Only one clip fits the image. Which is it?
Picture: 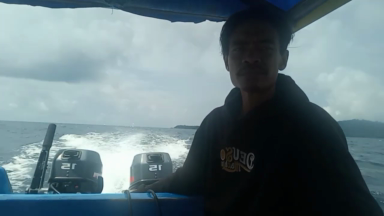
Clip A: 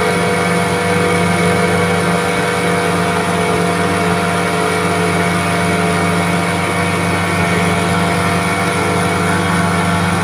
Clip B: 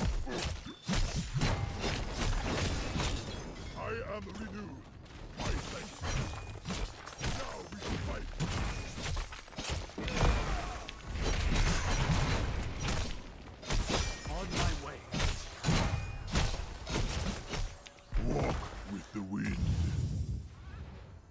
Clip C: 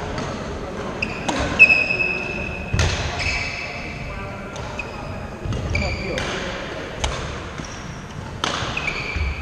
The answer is A